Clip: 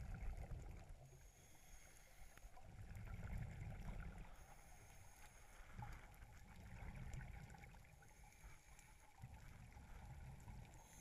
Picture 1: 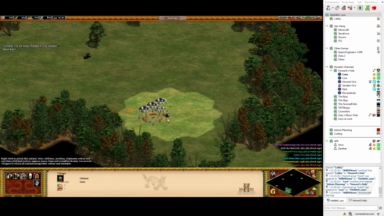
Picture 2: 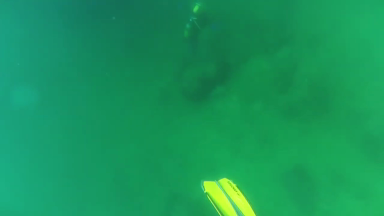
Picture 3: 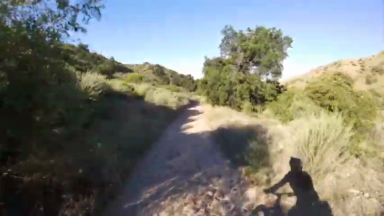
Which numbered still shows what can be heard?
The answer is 2